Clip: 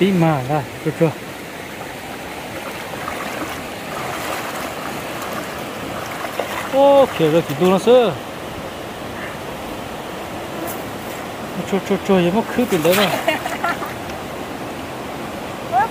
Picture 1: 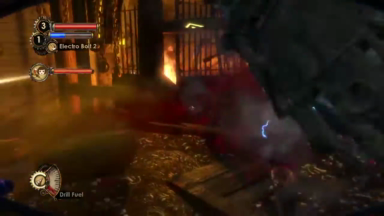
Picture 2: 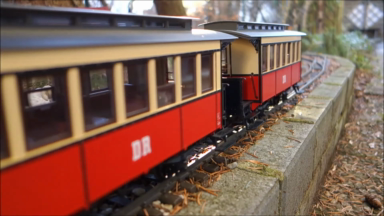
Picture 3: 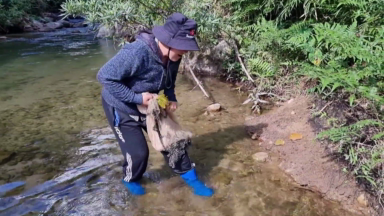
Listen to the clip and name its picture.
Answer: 3